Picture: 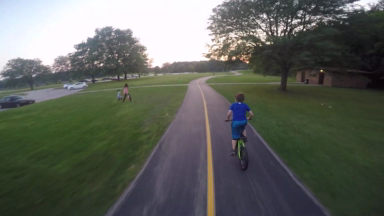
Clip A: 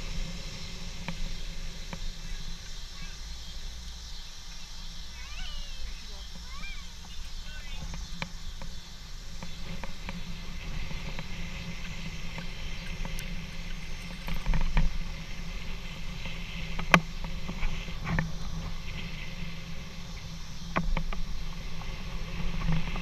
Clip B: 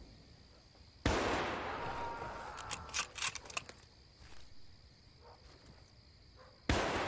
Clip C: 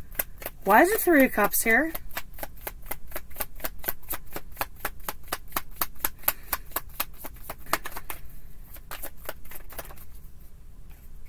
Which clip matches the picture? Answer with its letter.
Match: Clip A